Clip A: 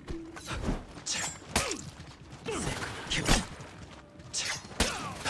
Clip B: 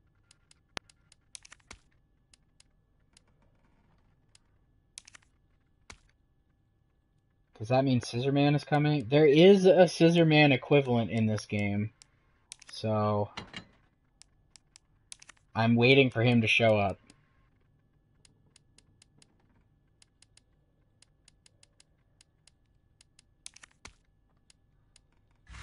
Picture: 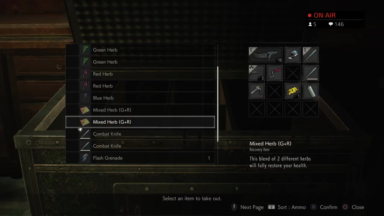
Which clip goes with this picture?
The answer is B